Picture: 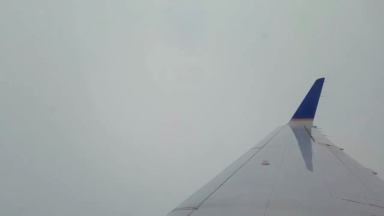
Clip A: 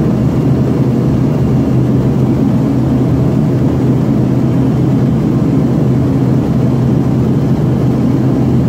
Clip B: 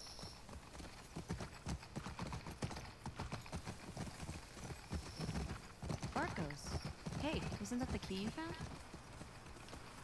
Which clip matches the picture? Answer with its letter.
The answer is A